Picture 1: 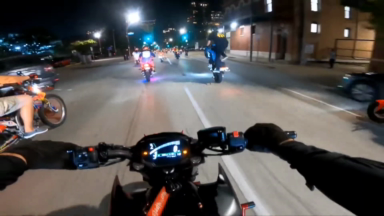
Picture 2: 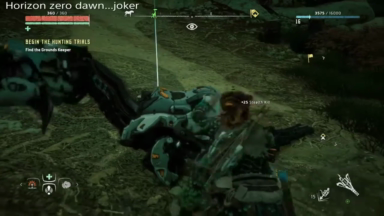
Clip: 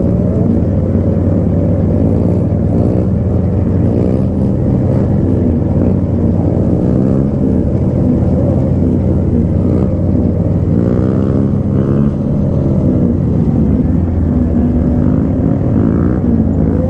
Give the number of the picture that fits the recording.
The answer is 1